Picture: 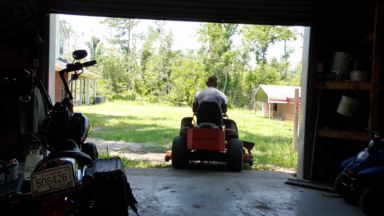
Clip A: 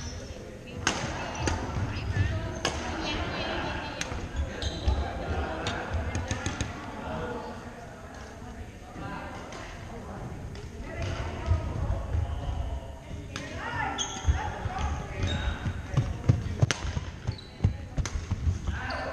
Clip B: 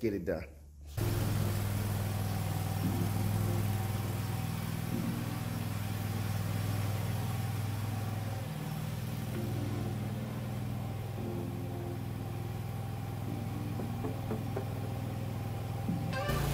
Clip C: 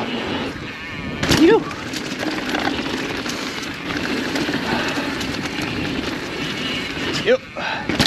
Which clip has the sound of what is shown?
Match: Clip B